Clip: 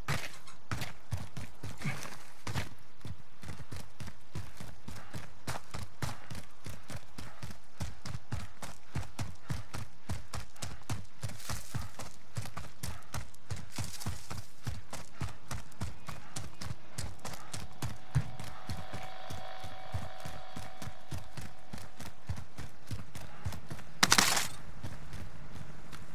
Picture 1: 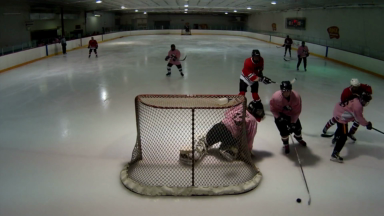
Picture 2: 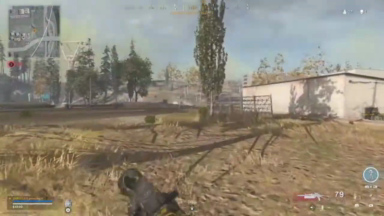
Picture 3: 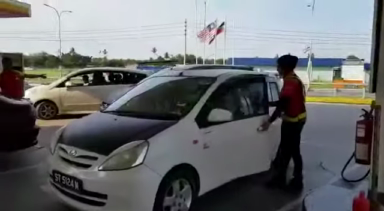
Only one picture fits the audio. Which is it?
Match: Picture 2